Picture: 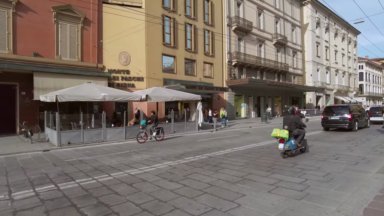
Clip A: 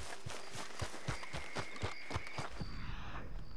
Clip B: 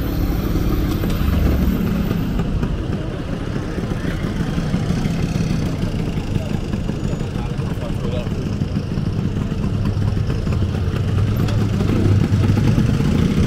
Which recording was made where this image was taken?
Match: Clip B